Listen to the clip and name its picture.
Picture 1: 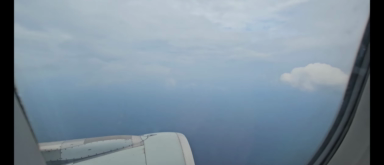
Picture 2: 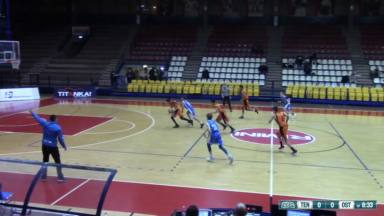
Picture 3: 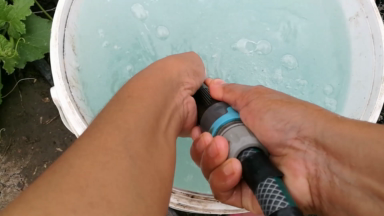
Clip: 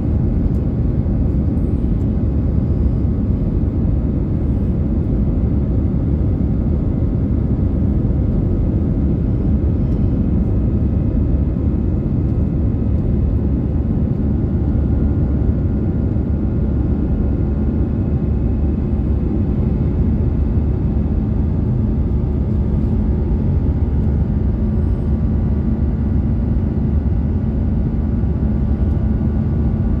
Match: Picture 1